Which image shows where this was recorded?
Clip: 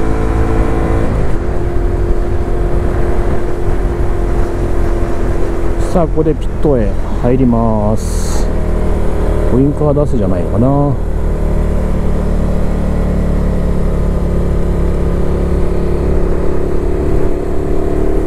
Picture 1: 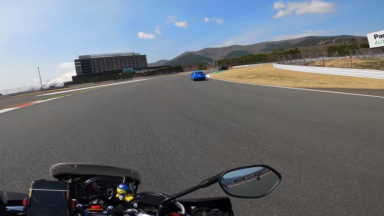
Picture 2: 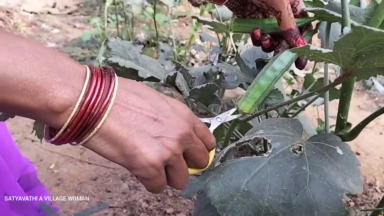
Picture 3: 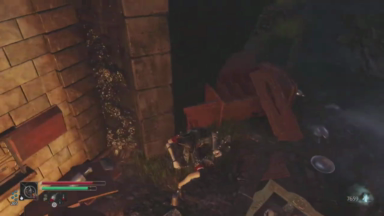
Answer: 1